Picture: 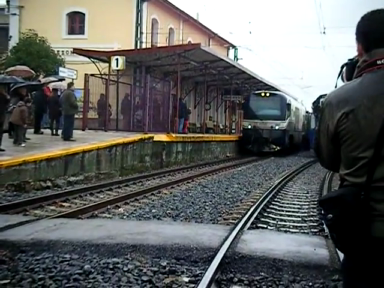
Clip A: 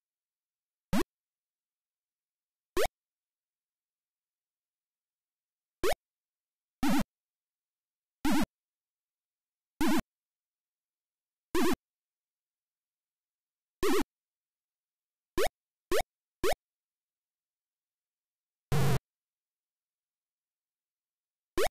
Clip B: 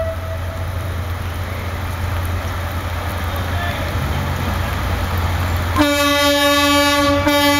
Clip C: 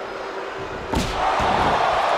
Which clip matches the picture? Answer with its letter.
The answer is B